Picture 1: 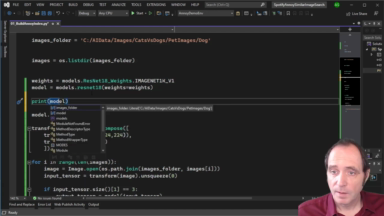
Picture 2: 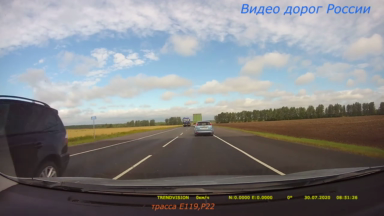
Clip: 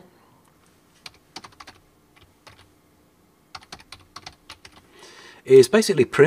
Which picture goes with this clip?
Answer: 1